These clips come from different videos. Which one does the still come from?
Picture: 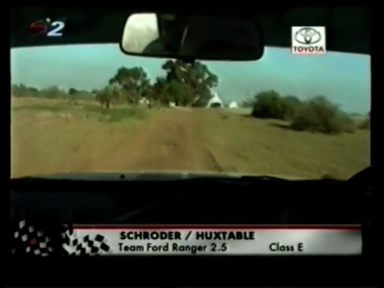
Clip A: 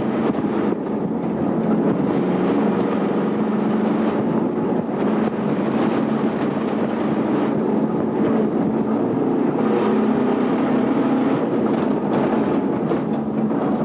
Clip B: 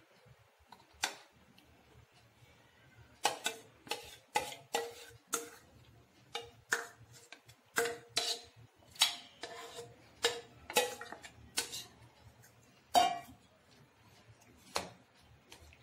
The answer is A